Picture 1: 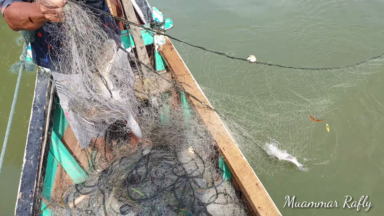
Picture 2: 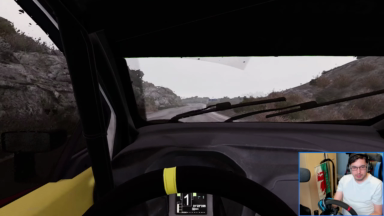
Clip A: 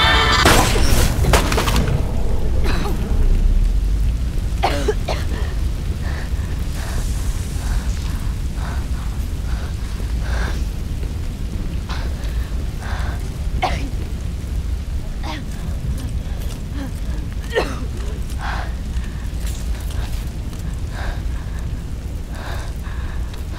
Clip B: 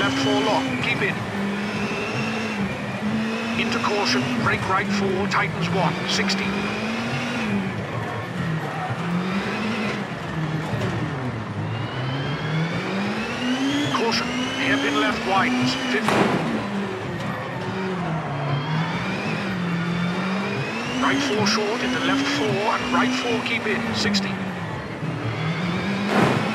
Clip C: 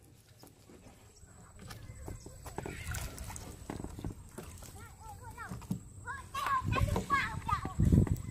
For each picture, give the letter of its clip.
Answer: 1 C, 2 B